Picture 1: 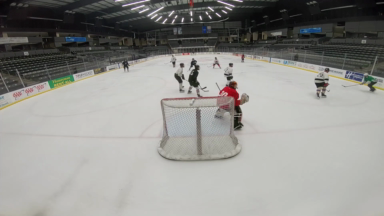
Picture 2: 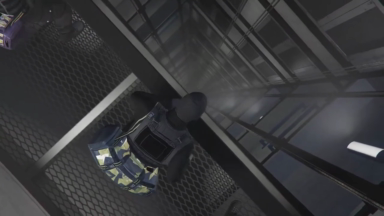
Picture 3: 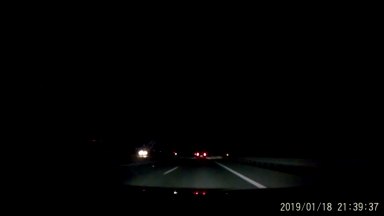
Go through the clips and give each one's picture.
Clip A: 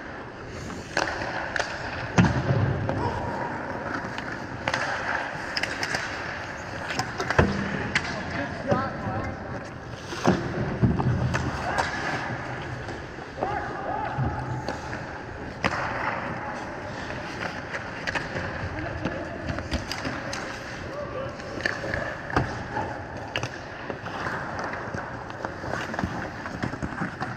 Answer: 1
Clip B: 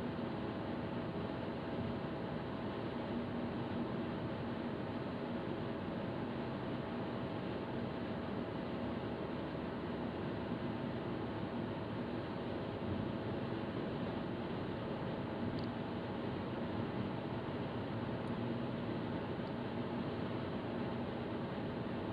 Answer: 3